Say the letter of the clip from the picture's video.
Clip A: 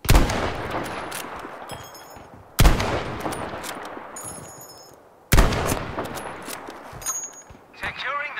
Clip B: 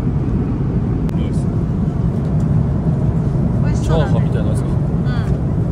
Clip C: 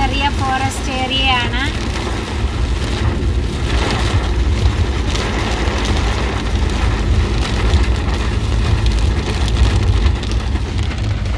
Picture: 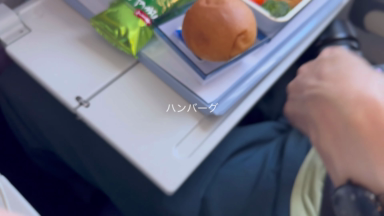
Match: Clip B